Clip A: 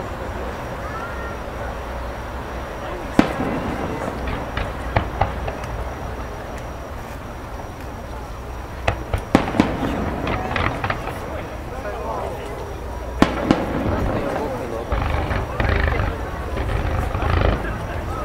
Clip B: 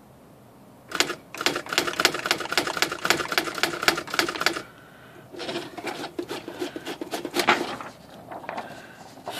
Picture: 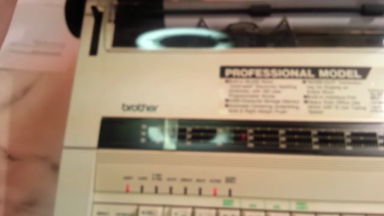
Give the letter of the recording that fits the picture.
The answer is B